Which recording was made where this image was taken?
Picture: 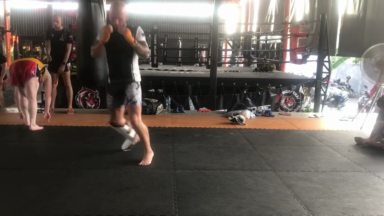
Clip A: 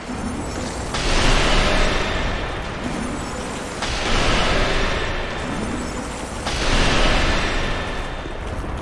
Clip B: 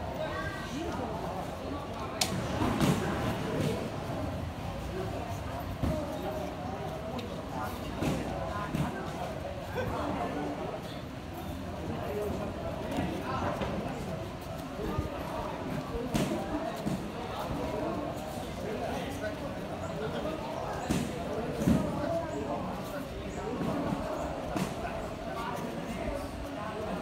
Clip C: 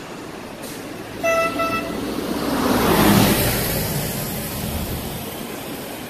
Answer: B